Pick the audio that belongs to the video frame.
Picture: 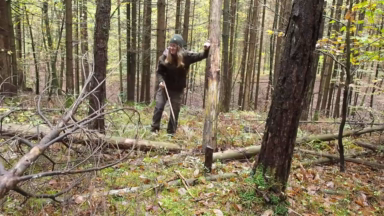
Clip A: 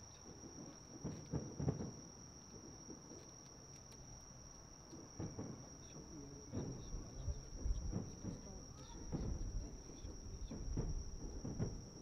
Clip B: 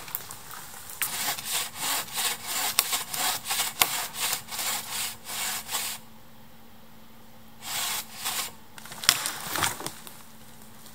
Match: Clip B